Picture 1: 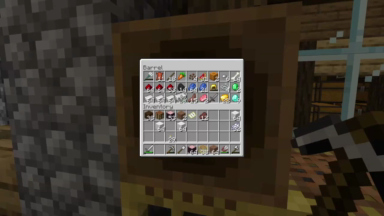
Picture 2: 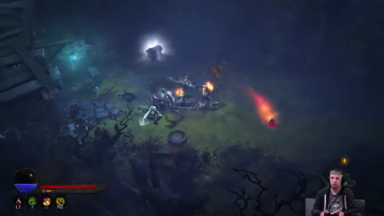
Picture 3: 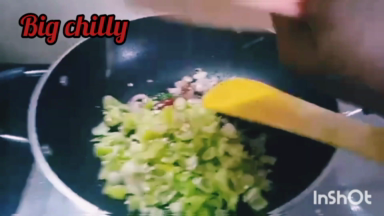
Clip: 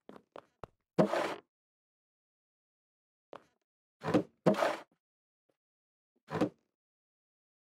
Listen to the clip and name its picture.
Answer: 1